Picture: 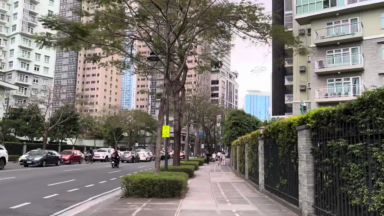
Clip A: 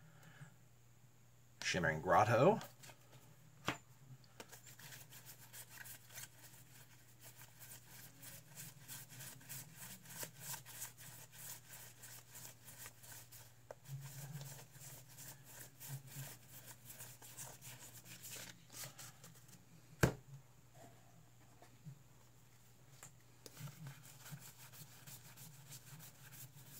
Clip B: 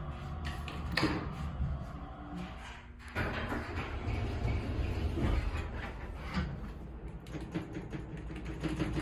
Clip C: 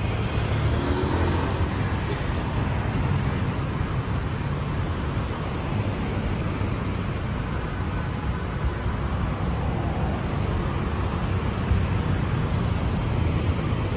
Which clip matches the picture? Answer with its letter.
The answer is C